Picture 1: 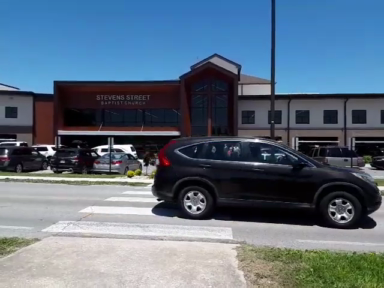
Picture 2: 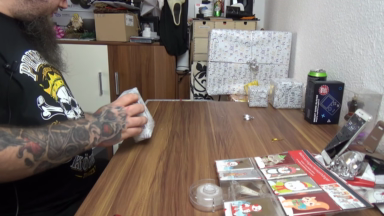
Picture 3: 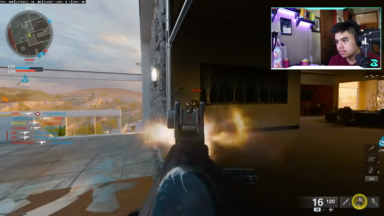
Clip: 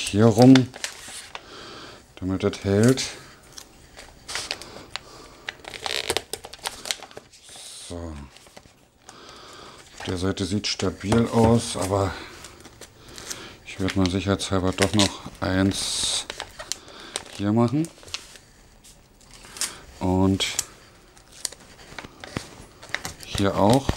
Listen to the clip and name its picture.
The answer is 2